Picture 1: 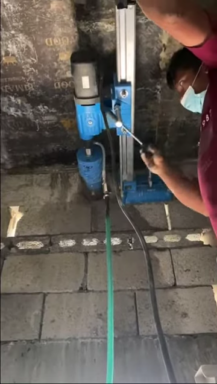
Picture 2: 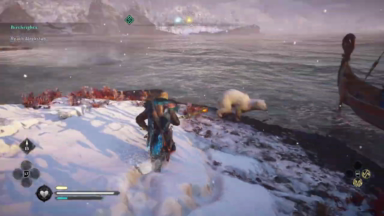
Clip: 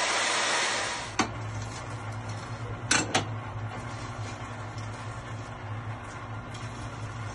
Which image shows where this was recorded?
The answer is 1